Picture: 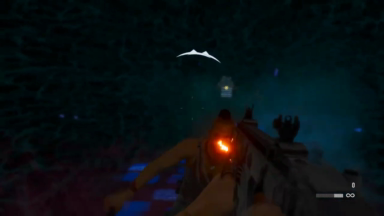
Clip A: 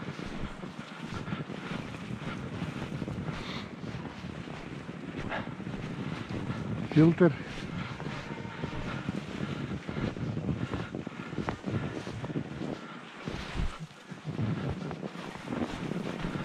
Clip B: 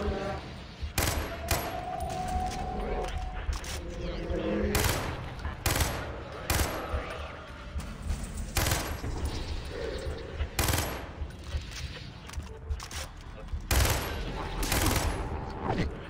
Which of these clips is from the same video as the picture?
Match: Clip B